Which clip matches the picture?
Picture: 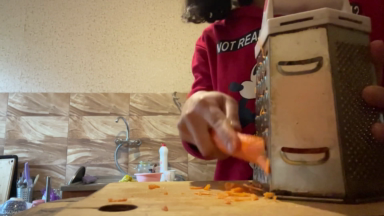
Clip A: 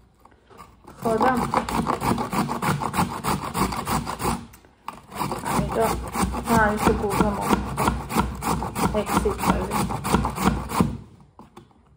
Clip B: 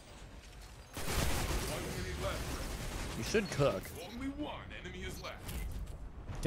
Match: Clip A